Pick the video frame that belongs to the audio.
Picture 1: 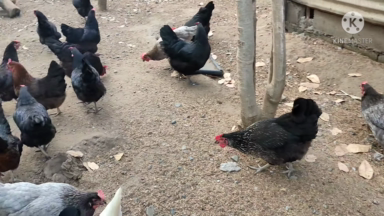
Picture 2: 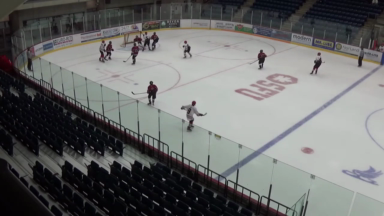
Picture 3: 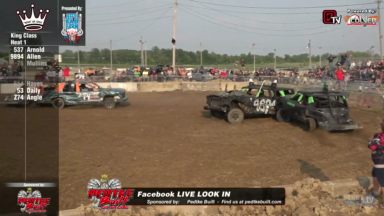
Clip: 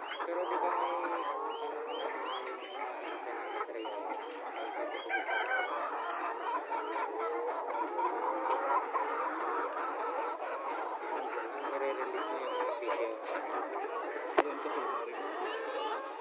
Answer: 1